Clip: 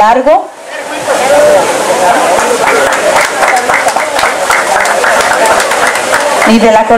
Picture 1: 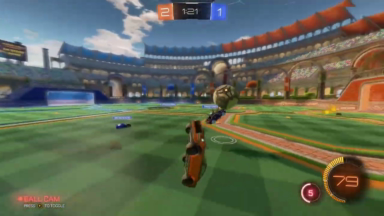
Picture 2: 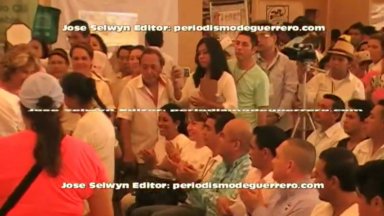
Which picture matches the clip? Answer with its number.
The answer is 2